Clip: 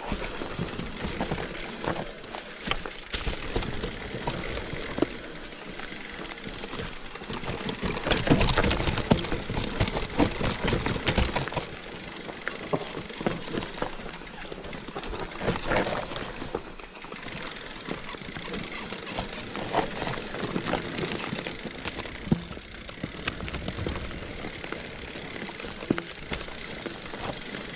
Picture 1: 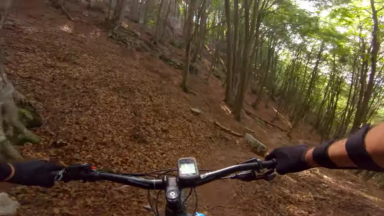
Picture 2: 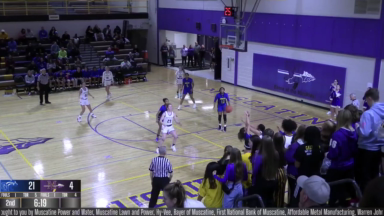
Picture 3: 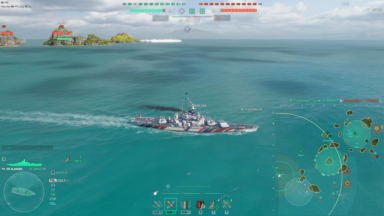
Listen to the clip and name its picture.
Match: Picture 1